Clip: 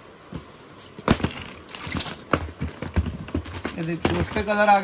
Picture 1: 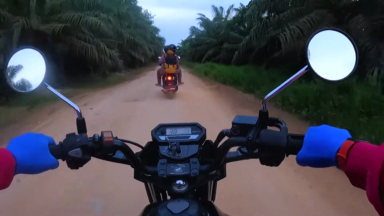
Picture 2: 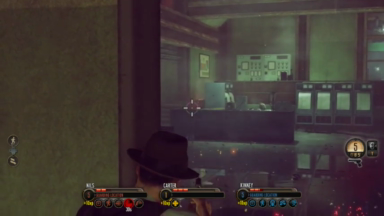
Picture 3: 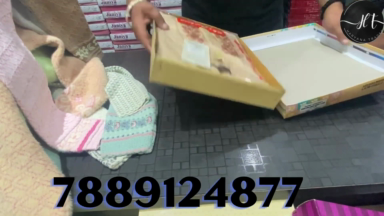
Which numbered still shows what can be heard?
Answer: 3